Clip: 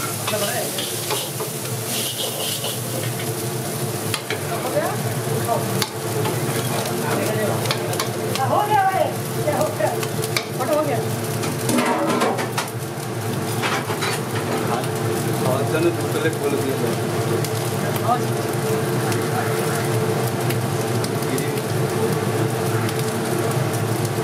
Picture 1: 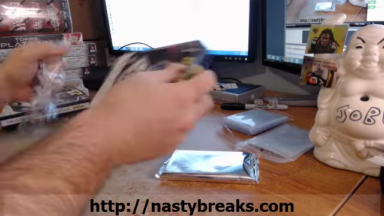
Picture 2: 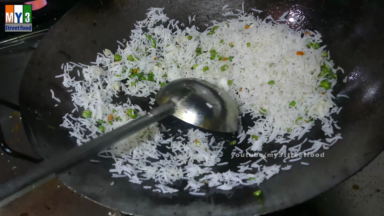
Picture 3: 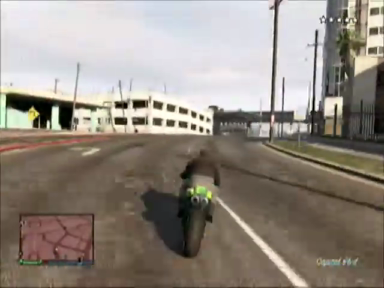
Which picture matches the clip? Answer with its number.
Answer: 2